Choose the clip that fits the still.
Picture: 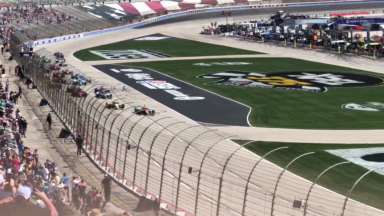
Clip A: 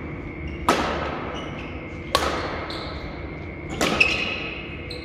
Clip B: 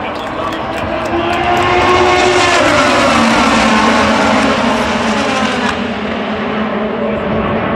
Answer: B